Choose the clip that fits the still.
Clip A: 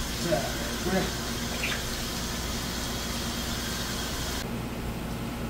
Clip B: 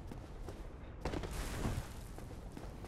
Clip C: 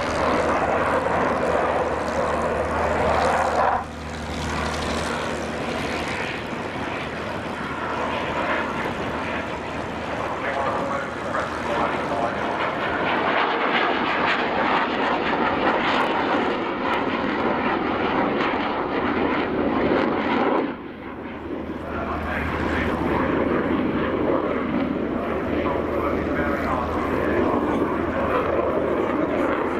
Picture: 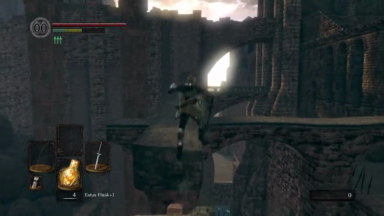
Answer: B